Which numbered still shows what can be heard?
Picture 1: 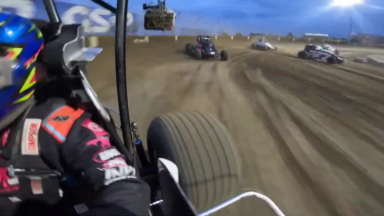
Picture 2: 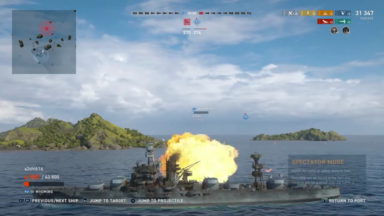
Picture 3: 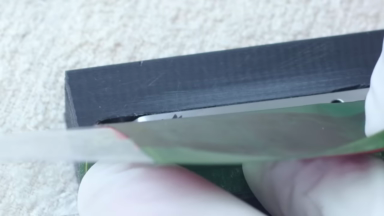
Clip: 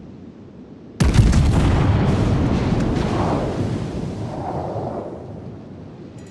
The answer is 2